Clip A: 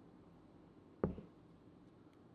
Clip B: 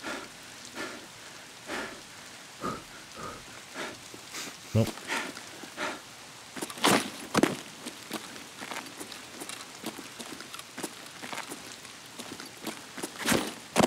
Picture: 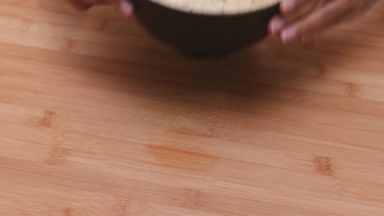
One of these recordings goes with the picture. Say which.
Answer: A